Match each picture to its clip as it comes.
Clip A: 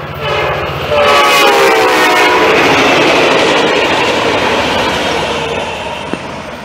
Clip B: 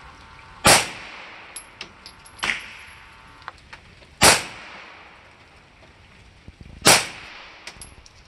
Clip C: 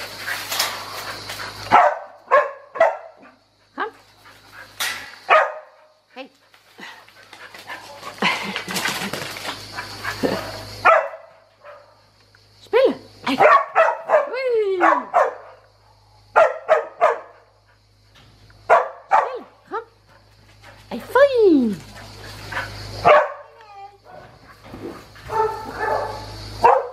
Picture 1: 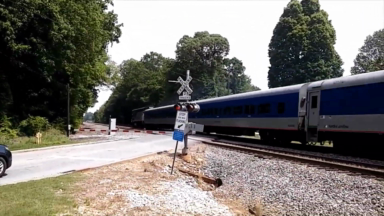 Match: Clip A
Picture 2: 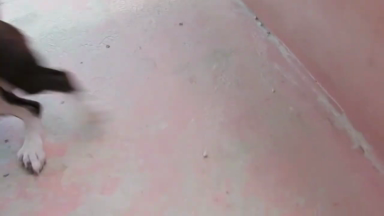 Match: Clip C